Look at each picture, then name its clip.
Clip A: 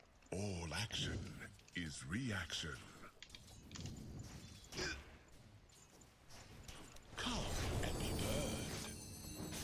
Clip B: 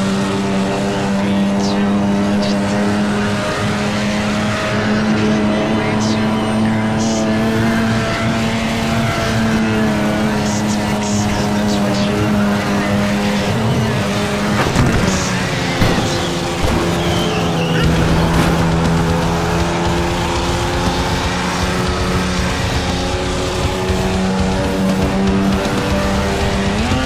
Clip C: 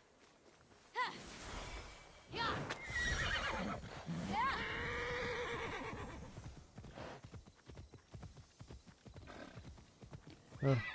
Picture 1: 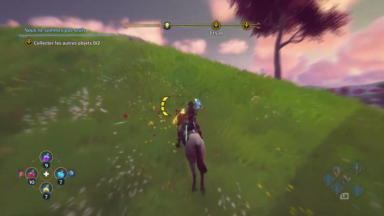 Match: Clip C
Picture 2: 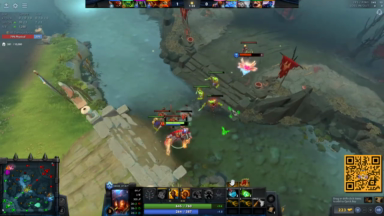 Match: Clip A